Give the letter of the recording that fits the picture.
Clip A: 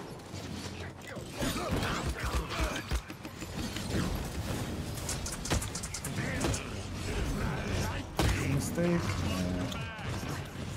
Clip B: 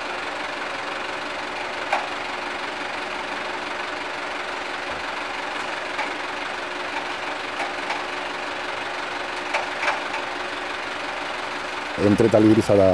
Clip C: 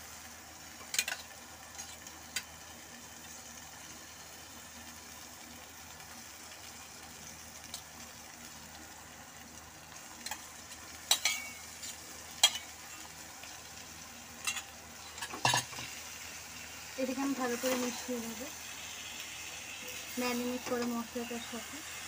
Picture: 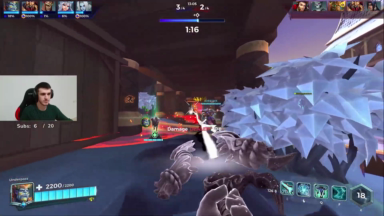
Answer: A